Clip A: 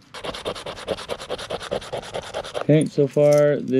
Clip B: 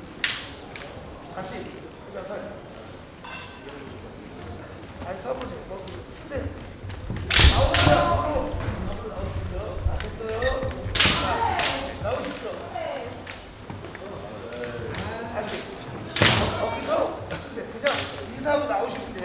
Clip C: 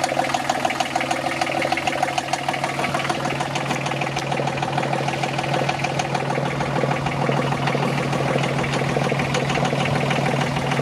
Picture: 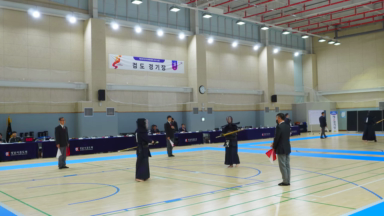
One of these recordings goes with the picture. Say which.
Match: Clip B